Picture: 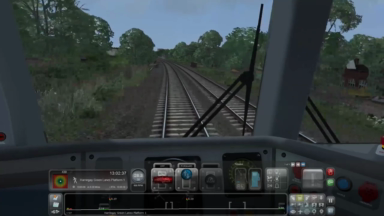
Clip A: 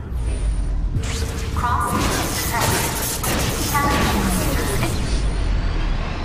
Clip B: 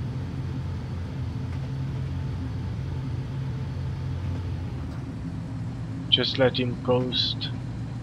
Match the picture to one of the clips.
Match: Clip B